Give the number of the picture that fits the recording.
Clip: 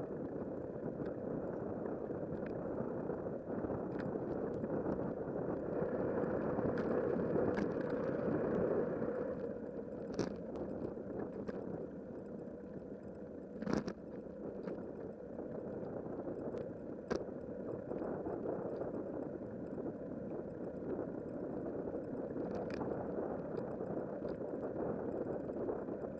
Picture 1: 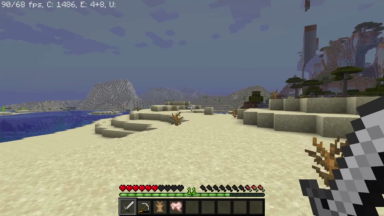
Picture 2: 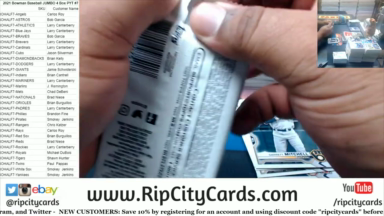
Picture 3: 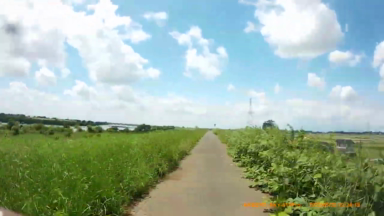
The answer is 3